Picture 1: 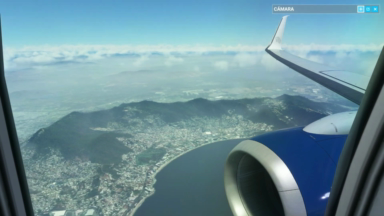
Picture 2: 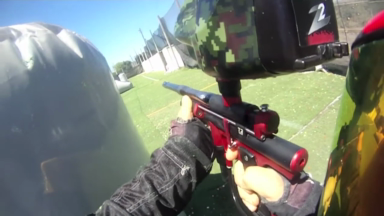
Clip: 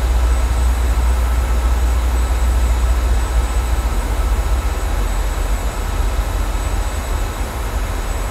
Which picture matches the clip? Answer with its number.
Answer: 1